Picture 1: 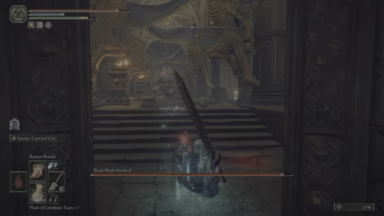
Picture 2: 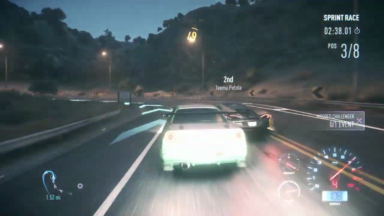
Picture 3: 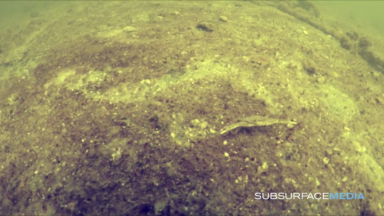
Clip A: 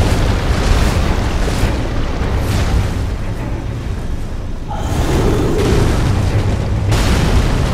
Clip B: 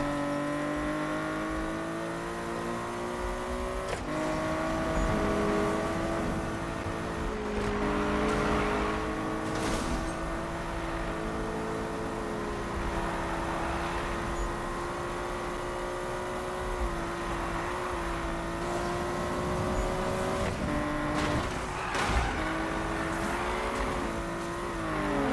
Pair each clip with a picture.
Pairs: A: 1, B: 2